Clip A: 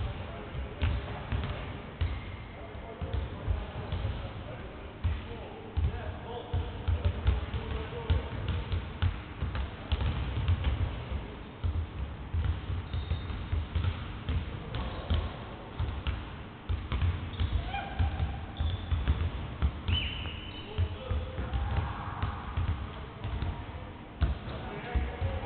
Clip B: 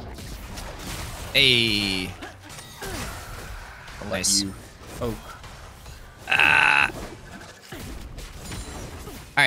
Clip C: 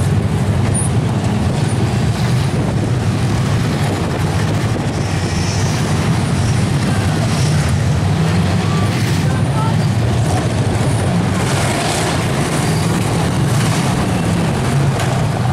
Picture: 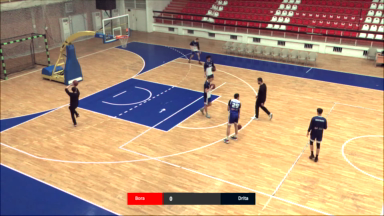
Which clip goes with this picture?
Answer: A